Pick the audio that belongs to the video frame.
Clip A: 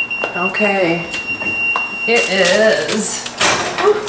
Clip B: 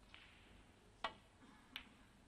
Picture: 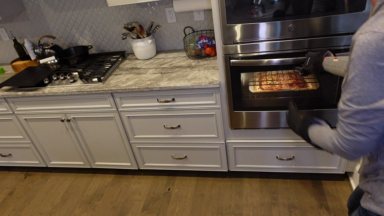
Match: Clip A